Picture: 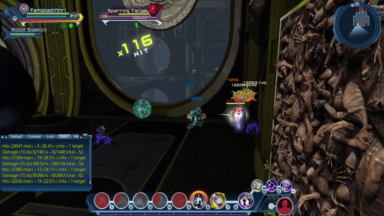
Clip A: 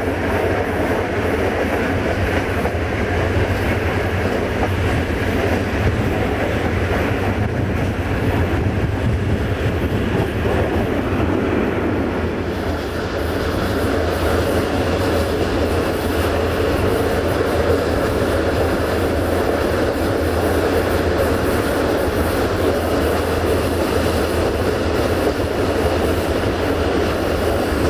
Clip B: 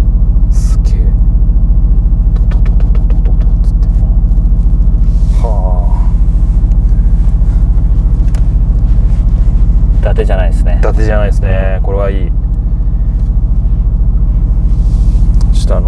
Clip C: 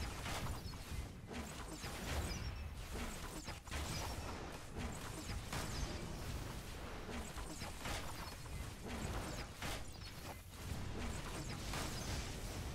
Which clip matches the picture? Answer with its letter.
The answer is C